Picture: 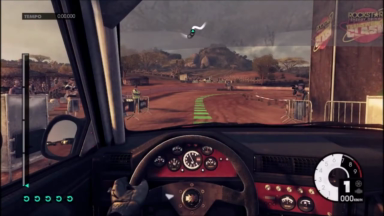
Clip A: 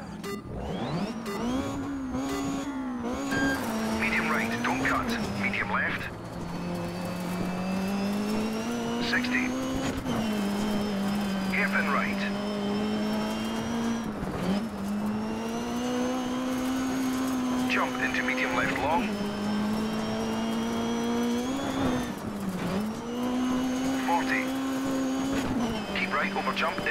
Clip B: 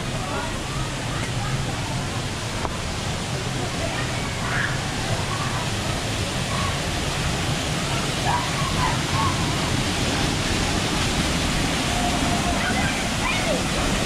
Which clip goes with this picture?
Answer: A